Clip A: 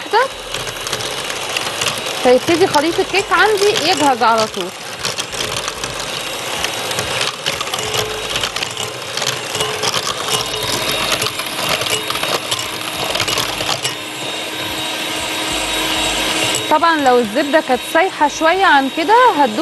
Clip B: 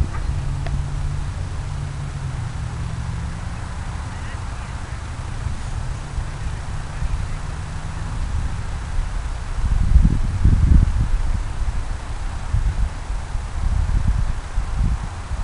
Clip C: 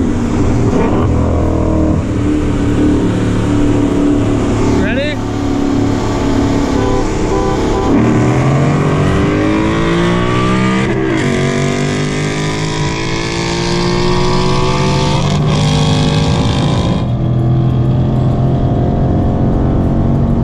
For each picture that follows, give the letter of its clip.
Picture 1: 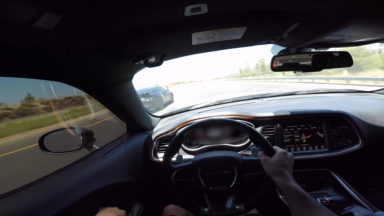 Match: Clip C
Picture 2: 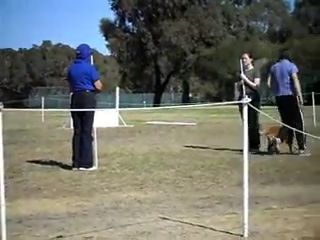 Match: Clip B